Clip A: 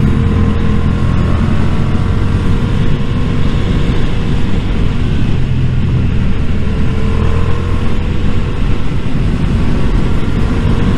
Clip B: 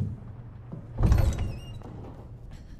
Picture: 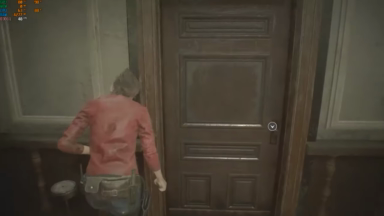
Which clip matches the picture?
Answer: B